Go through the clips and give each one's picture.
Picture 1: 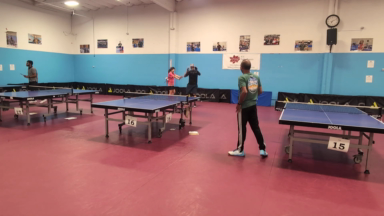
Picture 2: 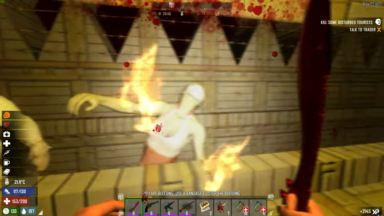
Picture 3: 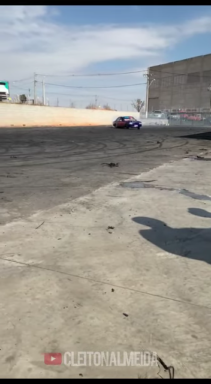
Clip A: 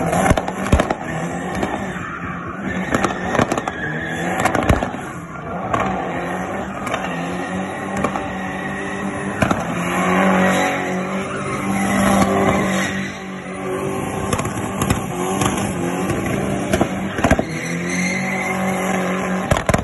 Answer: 3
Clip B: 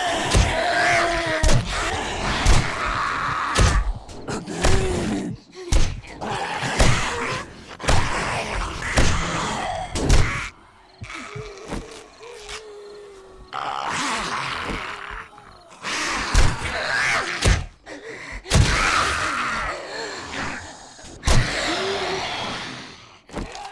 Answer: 2